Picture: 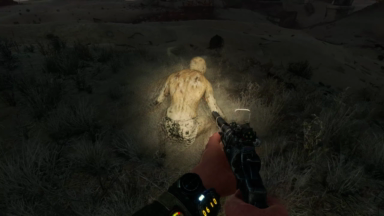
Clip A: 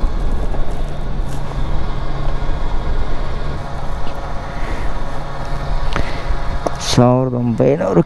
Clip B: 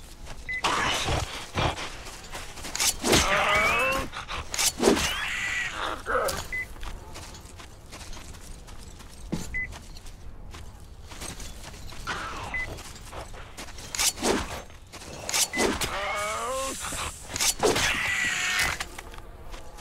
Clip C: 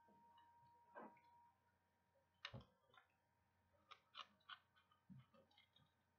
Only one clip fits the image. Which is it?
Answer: B